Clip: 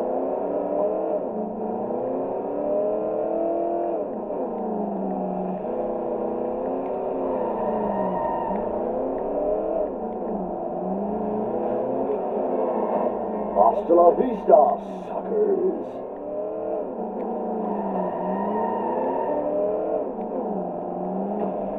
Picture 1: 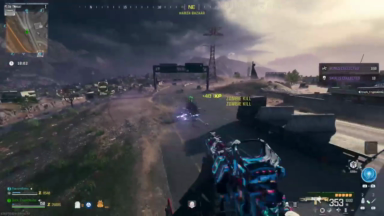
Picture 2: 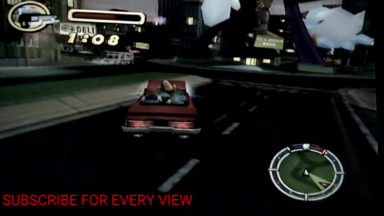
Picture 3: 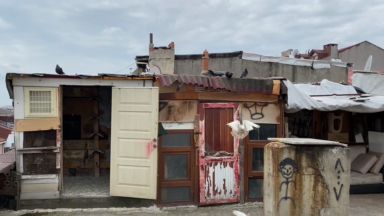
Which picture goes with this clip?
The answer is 2